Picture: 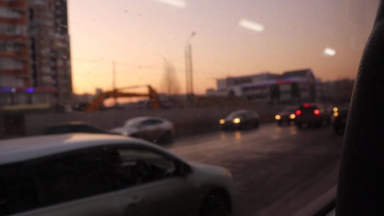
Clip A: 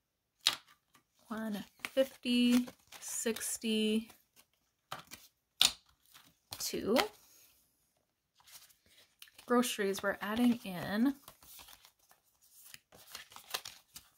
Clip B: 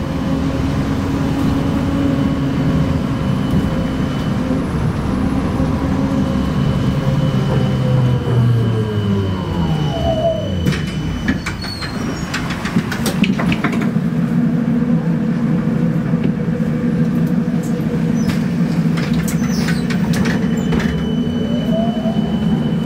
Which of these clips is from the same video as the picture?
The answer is B